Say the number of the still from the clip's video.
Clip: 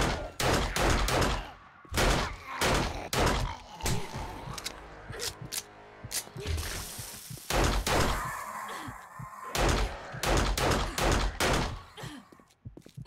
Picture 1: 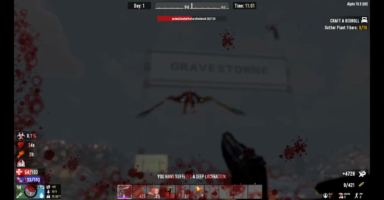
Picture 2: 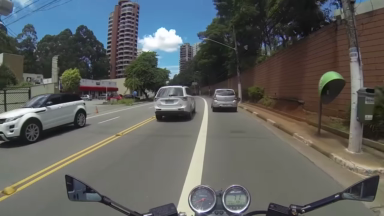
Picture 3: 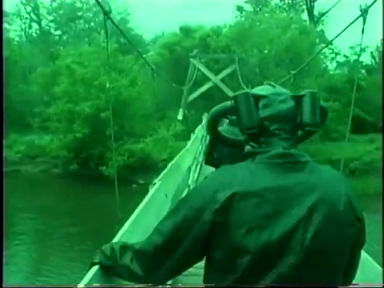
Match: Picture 1